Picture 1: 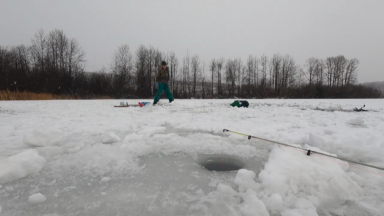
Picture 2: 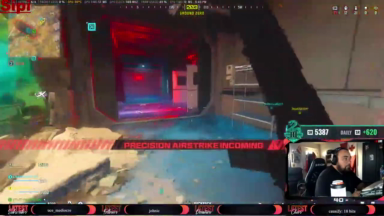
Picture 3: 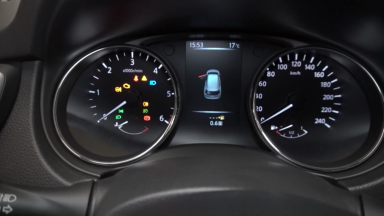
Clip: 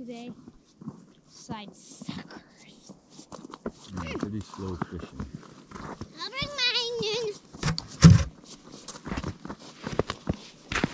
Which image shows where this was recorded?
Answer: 1